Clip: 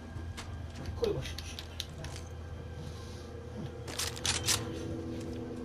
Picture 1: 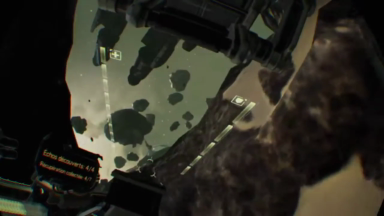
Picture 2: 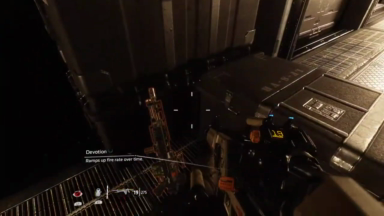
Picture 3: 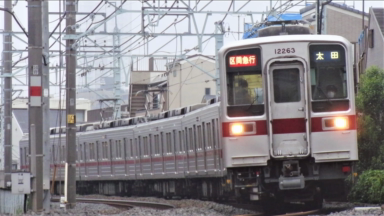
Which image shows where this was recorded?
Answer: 2